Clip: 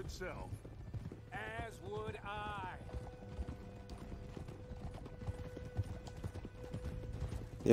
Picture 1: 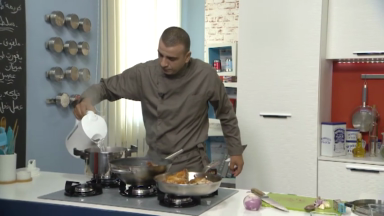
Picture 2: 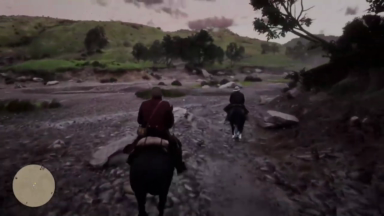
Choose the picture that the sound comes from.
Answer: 2